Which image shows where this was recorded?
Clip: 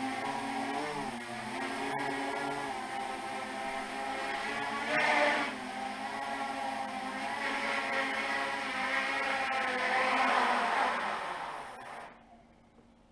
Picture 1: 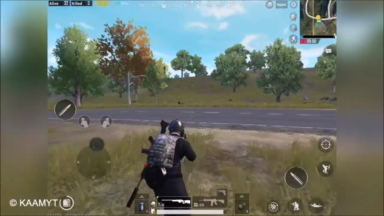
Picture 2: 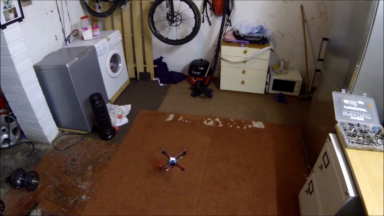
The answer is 2